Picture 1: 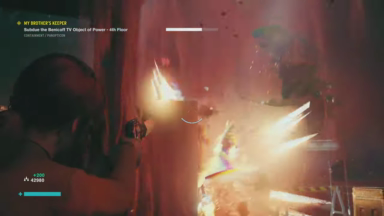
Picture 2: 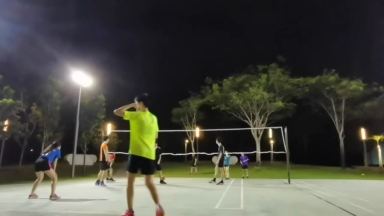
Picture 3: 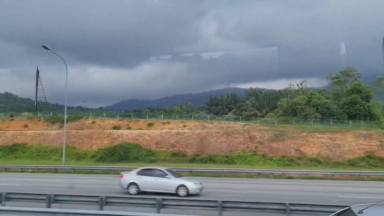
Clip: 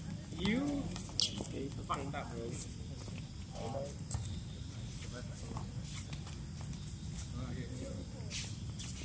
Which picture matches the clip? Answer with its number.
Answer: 2